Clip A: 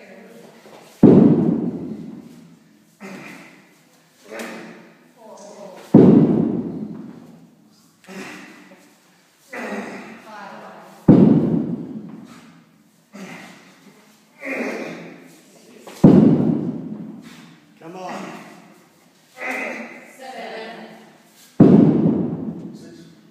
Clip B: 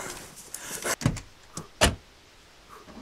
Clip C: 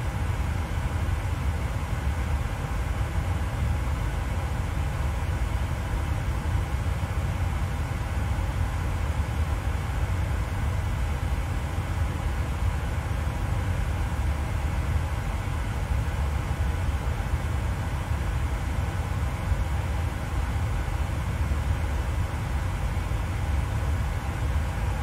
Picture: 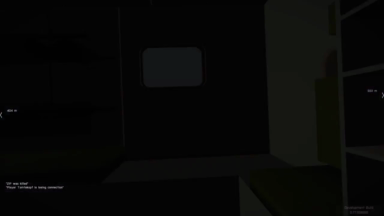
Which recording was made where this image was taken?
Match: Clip B